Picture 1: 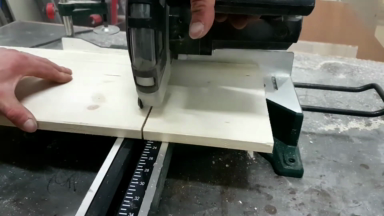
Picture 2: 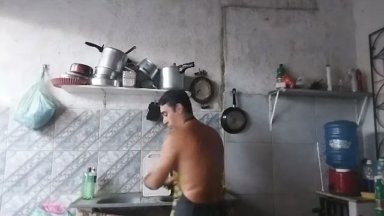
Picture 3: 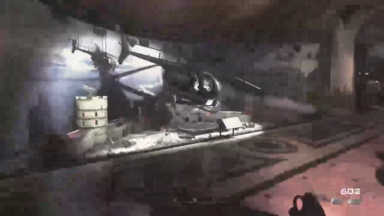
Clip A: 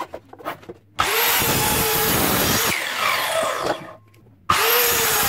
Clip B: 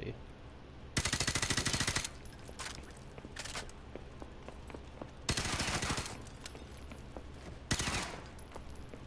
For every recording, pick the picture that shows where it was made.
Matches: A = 1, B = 3